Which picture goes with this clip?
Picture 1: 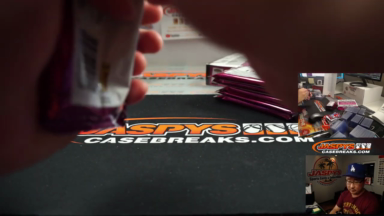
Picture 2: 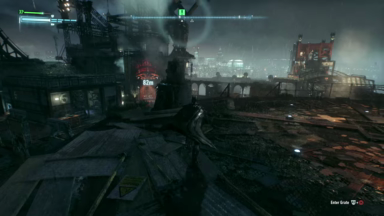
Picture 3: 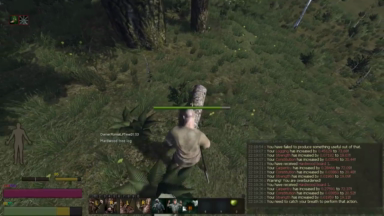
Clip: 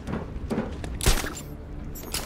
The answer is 2